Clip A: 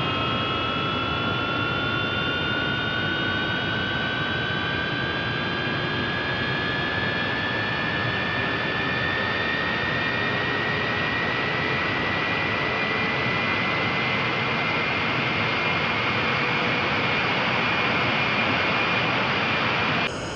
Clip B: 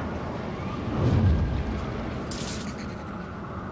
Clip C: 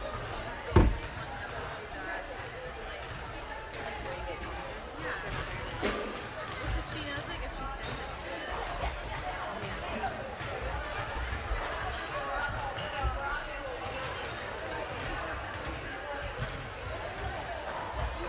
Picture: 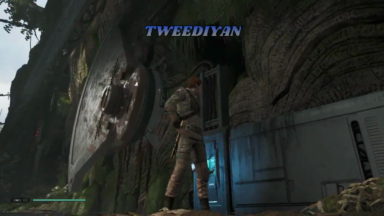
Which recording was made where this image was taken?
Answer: B